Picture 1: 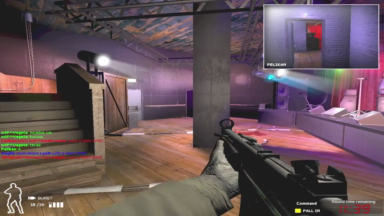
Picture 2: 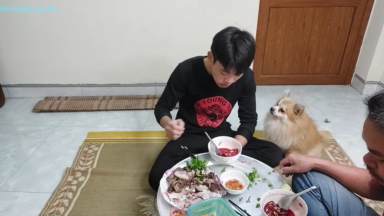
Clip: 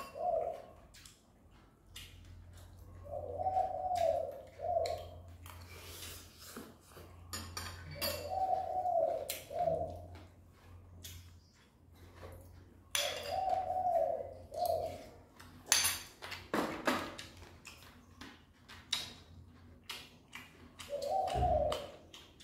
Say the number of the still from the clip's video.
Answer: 2